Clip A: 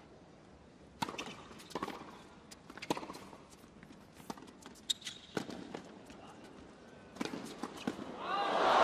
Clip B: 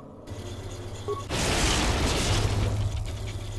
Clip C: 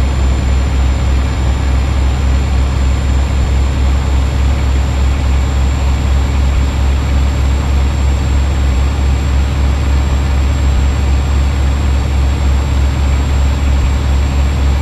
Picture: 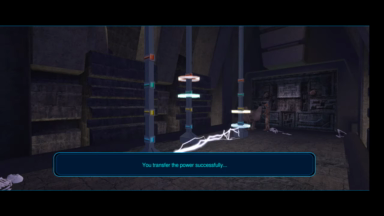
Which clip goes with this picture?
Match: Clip B